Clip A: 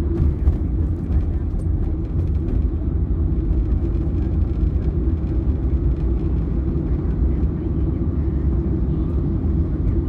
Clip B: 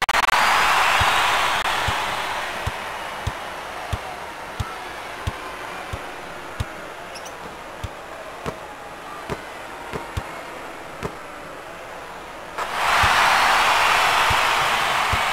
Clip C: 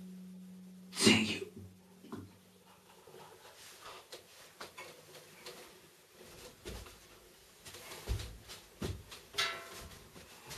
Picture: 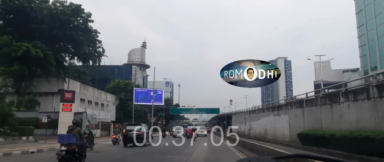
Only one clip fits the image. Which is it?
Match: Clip A